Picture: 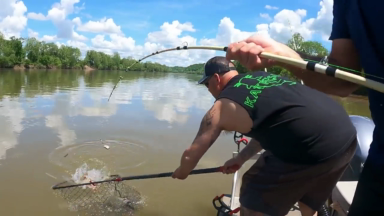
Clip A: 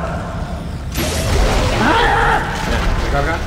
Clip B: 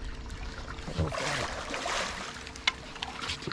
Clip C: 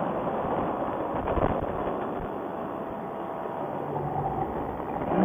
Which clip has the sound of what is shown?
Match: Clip B